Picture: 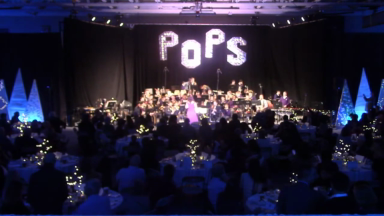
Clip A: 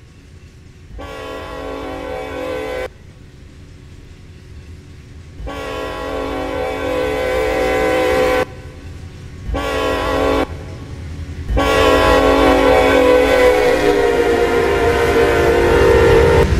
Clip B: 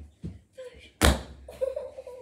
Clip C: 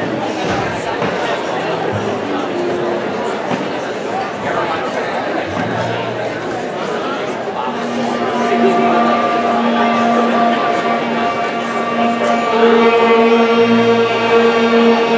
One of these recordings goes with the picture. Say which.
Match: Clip C